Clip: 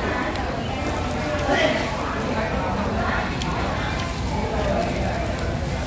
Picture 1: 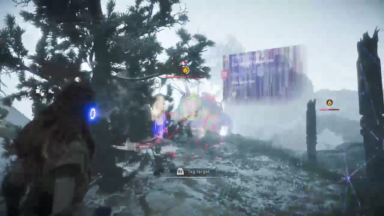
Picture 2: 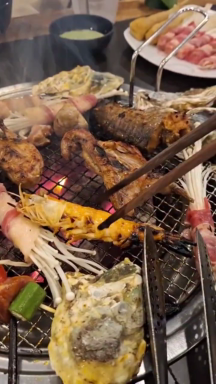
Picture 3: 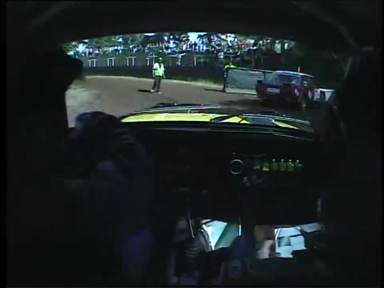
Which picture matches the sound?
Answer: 2